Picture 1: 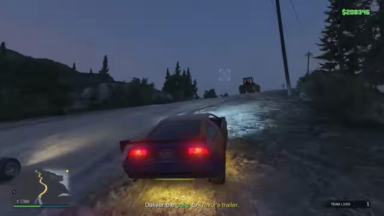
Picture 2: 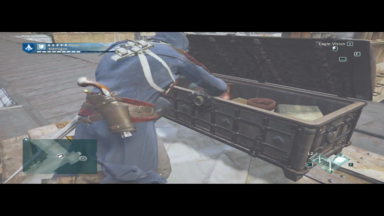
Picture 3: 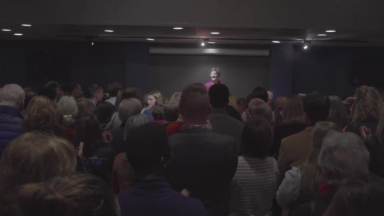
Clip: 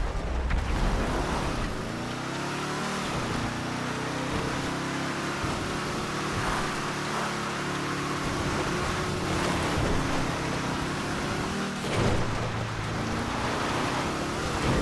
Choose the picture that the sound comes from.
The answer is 1